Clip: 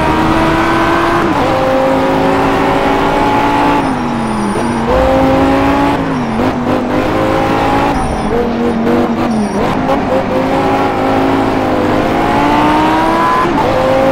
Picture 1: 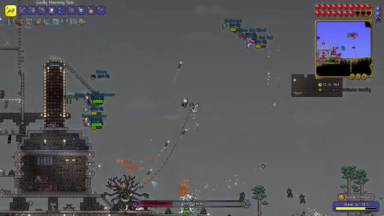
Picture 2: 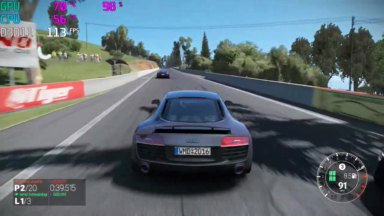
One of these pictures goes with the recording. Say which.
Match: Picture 2